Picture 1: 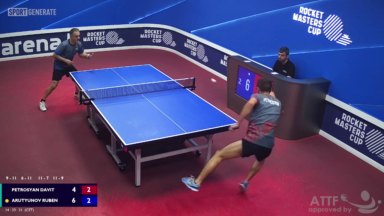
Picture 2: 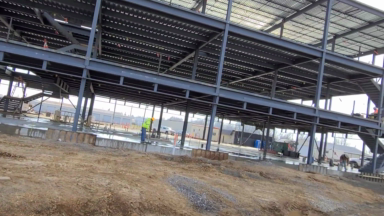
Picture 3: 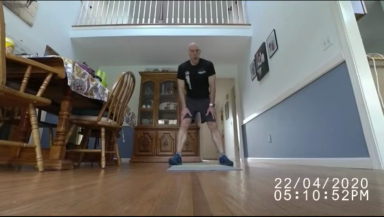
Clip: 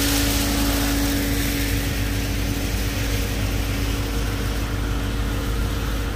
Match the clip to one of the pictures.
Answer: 2